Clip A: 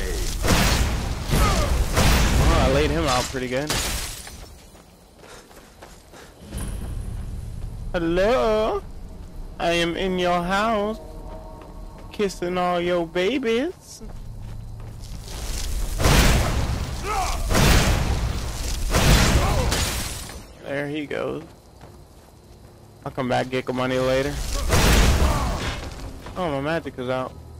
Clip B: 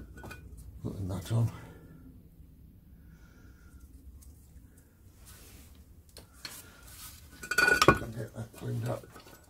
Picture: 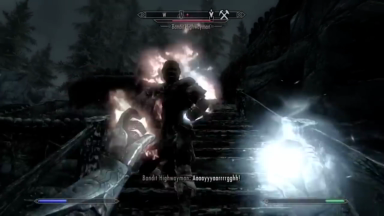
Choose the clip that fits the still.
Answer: A